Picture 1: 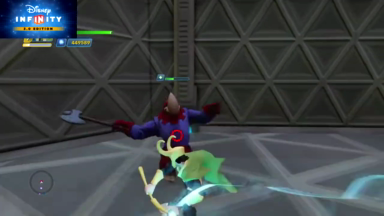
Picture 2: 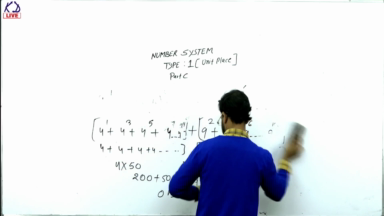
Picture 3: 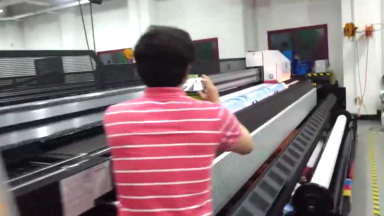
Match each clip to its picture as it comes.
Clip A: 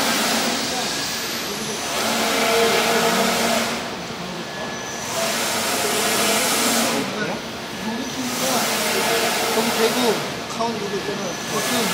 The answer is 3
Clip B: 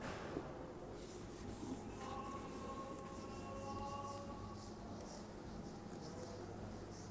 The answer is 2